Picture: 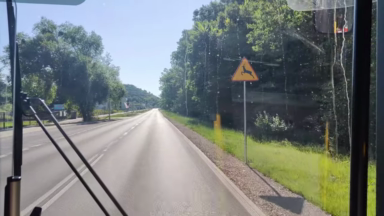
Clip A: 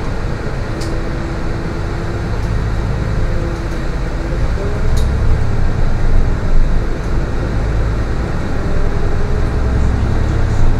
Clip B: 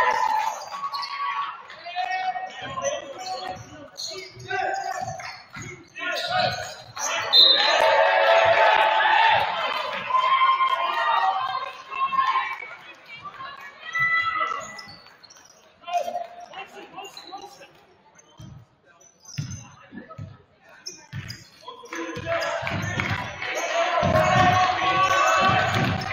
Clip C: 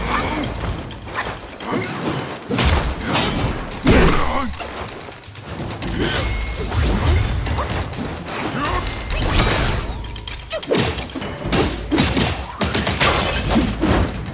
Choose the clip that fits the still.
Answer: A